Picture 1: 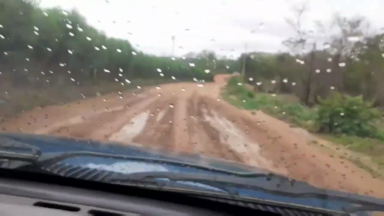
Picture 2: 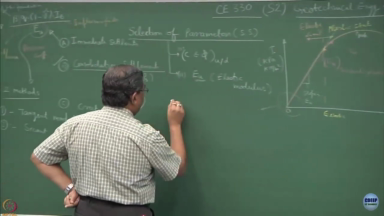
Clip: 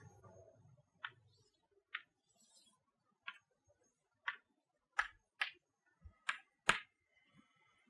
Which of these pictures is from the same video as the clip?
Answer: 2